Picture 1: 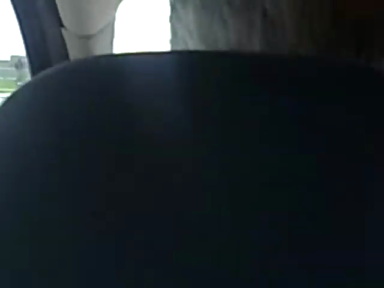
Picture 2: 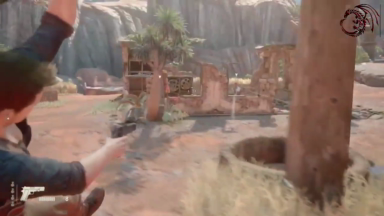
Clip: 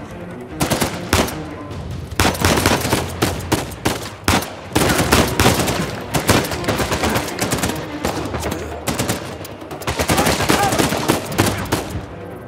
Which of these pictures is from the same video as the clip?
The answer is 2